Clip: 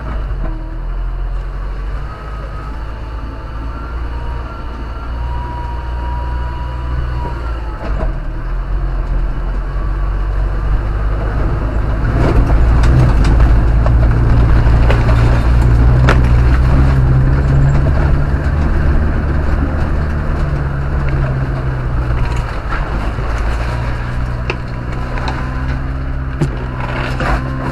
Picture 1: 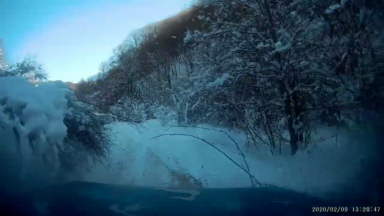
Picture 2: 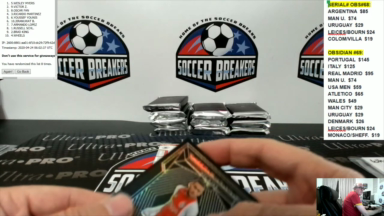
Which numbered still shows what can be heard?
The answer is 1